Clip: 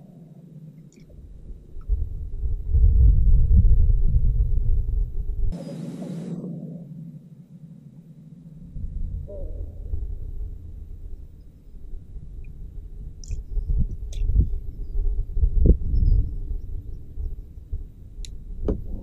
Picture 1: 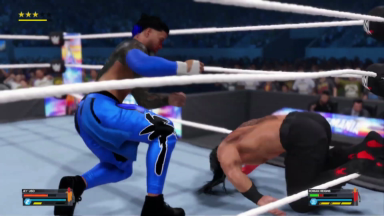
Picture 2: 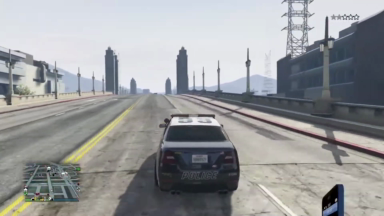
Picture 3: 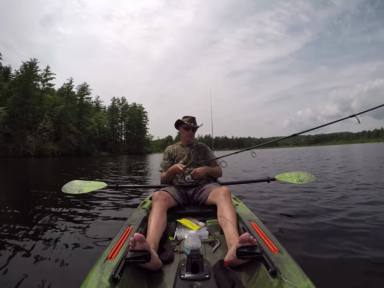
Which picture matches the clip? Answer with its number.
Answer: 3